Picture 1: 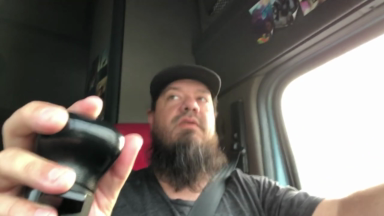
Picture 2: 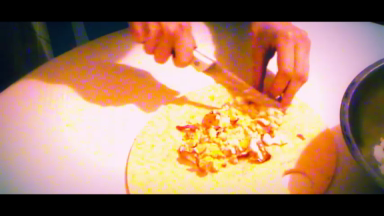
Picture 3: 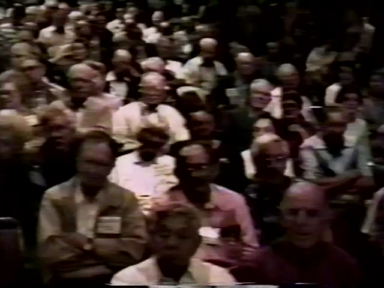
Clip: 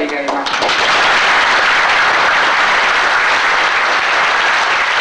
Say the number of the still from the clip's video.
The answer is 3